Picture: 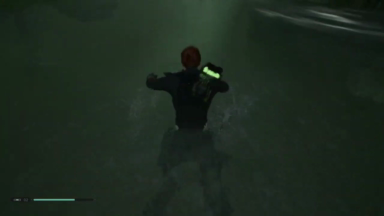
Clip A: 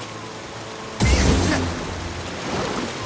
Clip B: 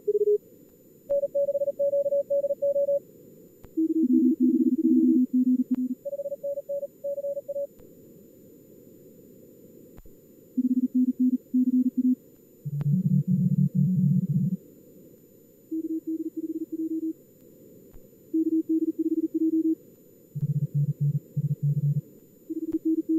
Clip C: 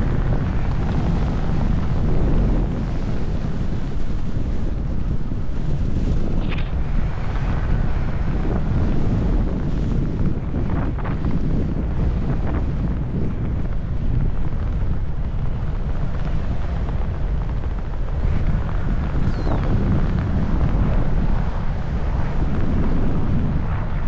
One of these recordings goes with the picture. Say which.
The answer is A